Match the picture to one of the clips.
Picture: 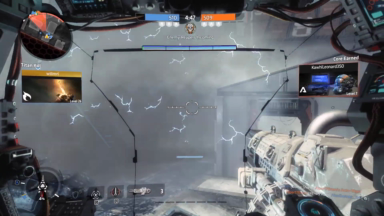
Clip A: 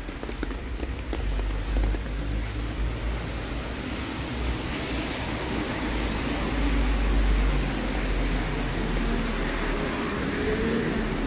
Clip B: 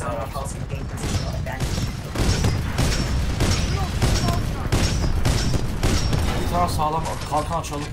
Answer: B